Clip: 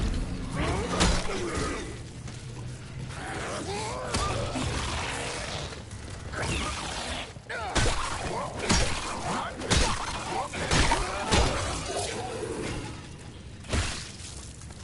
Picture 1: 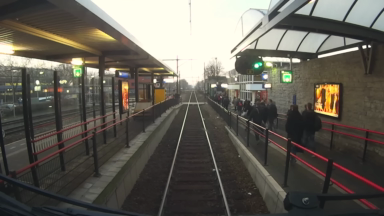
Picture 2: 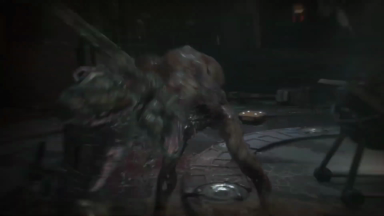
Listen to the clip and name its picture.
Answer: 2